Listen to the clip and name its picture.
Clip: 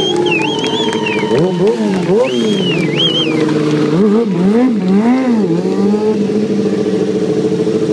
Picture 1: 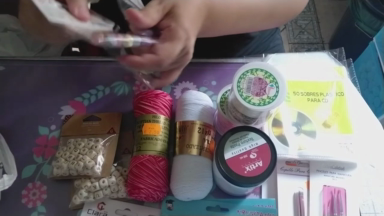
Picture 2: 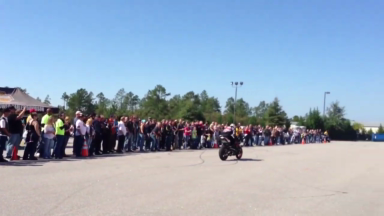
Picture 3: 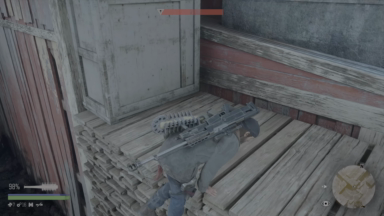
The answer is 2